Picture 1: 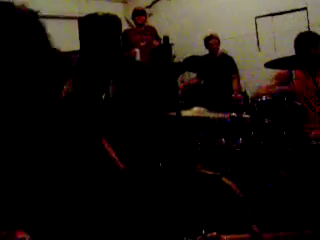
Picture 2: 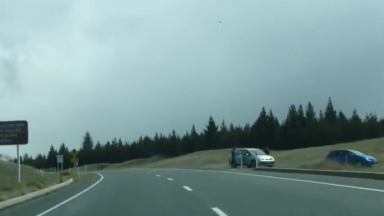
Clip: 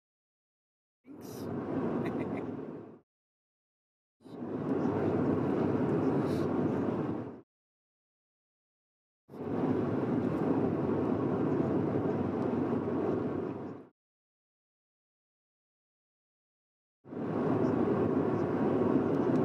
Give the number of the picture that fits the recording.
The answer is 2